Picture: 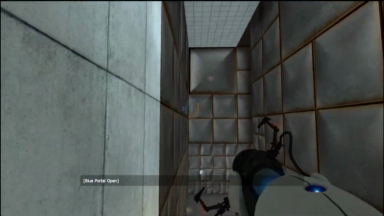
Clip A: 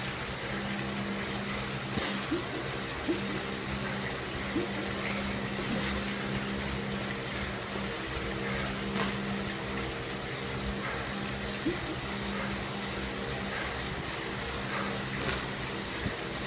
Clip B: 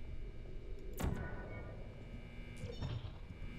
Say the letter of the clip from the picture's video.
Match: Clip B